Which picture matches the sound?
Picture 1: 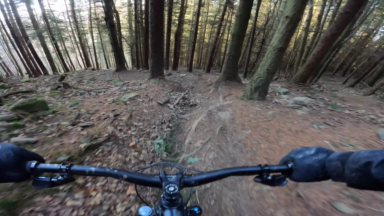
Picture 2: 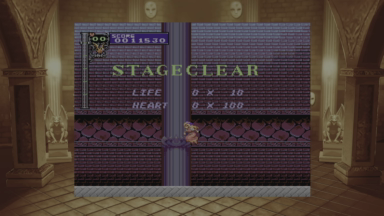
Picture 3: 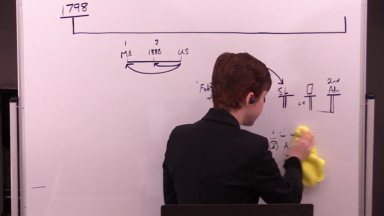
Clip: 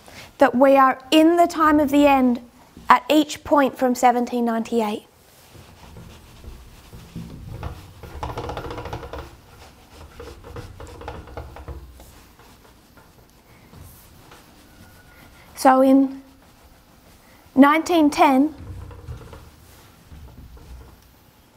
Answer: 3